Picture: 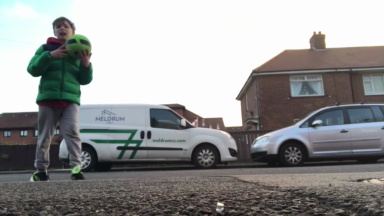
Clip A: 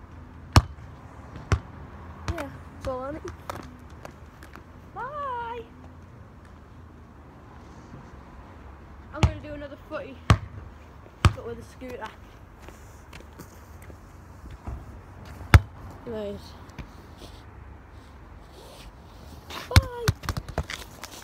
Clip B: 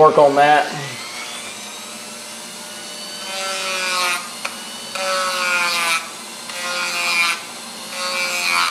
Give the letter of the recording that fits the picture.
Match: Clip A